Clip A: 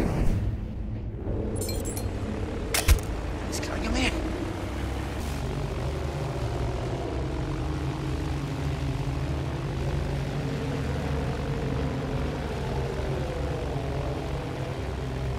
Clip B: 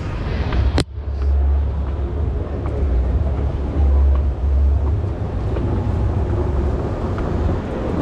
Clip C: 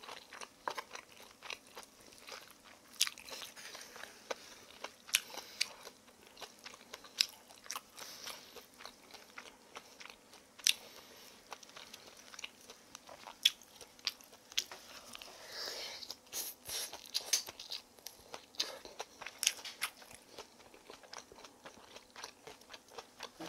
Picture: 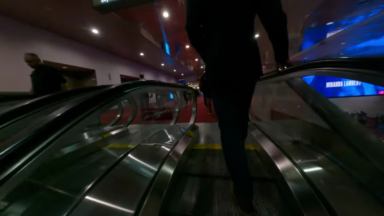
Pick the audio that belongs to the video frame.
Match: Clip B